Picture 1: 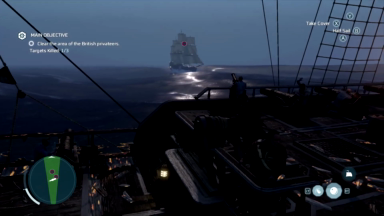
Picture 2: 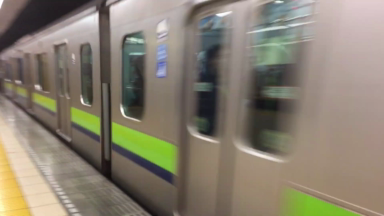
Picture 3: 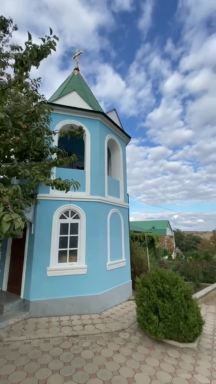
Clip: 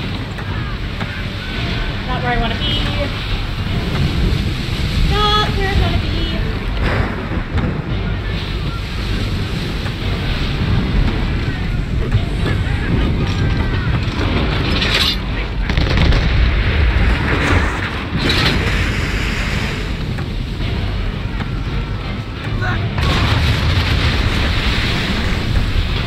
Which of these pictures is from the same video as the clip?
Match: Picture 1